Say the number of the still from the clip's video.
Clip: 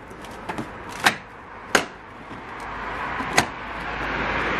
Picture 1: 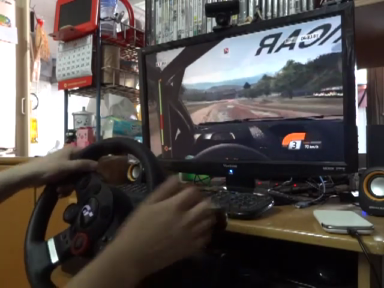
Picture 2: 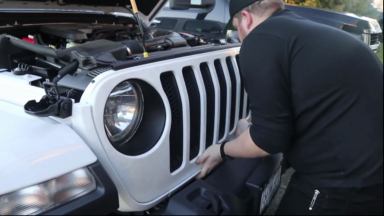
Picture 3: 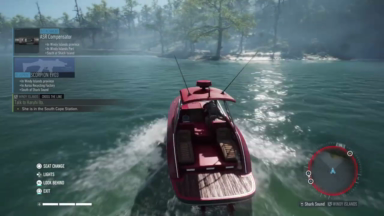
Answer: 2